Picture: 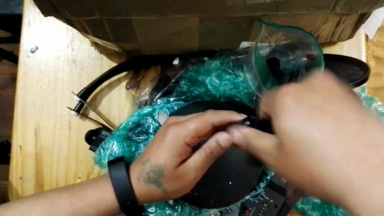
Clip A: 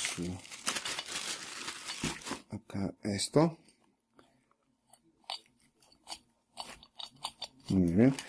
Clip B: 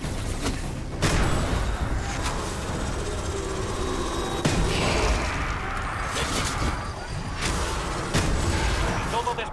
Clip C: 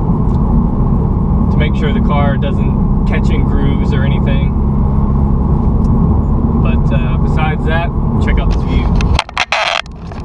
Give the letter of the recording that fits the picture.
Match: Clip A